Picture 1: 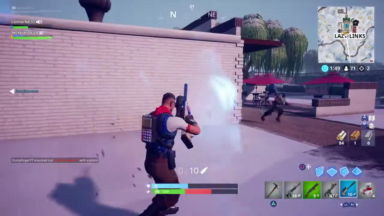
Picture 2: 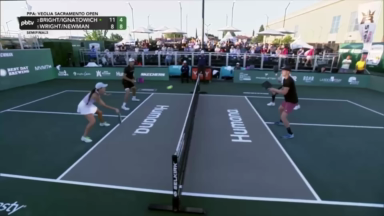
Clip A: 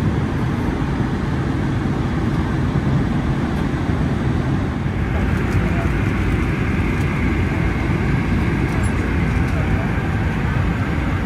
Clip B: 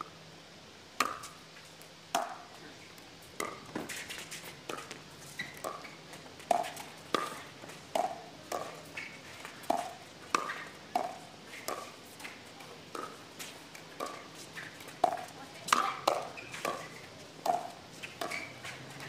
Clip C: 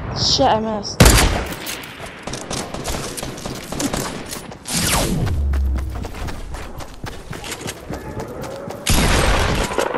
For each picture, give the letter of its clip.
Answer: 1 C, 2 B